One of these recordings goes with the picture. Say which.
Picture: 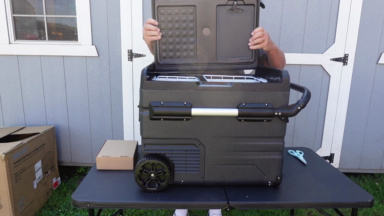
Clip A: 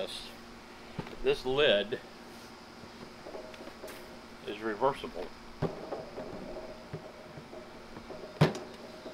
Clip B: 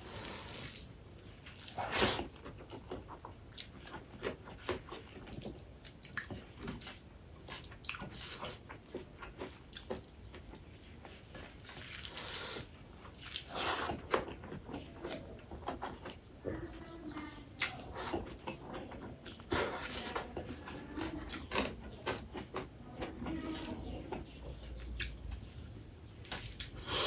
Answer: A